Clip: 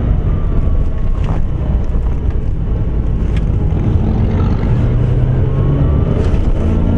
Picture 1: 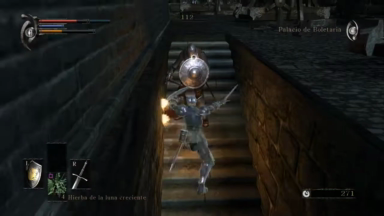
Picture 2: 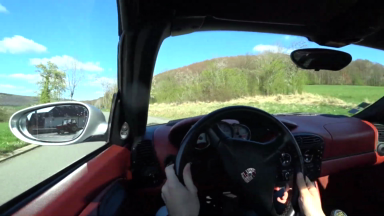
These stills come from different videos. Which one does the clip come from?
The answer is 2